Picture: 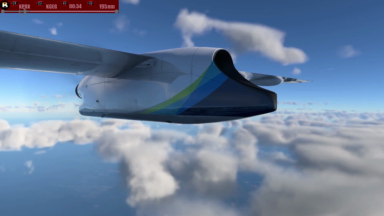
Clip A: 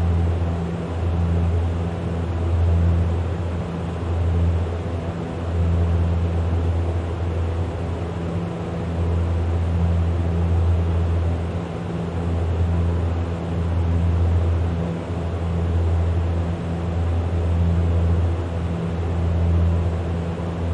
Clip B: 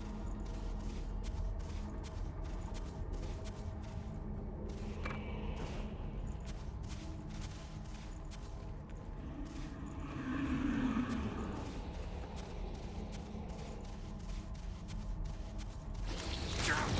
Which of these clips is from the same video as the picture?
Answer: A